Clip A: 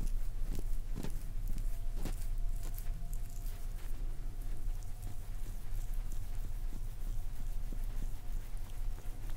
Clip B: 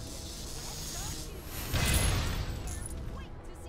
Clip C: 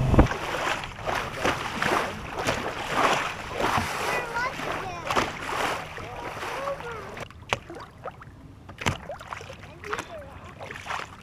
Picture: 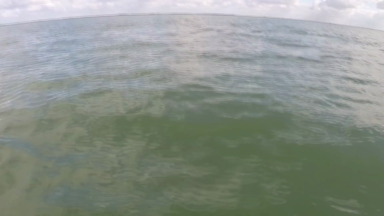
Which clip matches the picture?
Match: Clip C